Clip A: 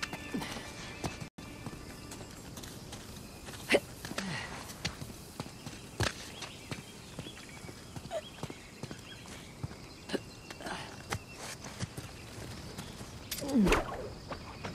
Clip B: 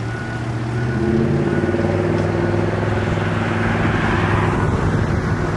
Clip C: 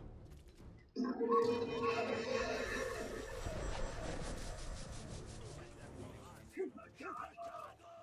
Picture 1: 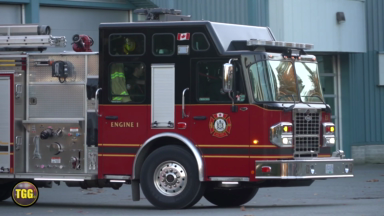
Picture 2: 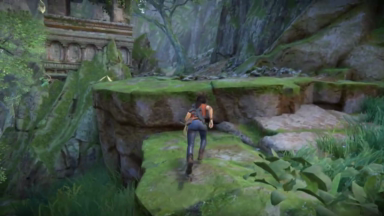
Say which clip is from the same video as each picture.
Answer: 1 B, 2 A